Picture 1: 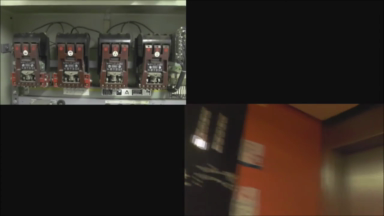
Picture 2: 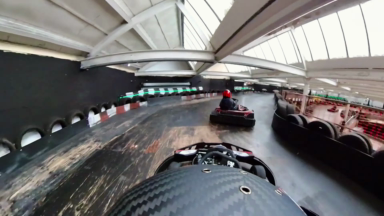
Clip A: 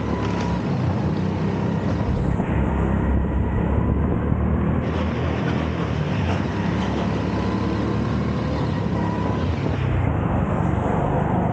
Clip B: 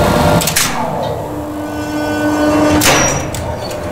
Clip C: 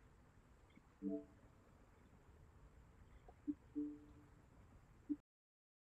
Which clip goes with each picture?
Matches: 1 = B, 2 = A